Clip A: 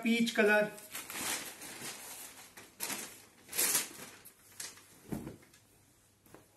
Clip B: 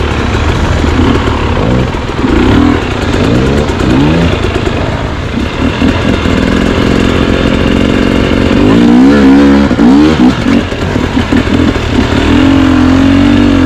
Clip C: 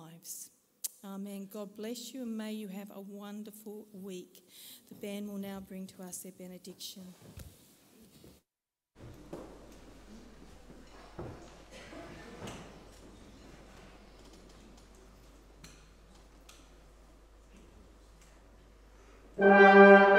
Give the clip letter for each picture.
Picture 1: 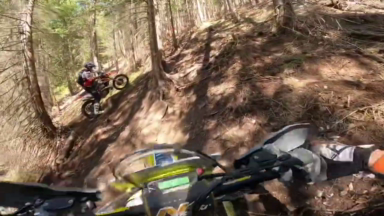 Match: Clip B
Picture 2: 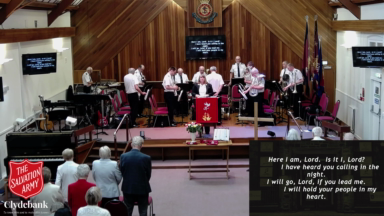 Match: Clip C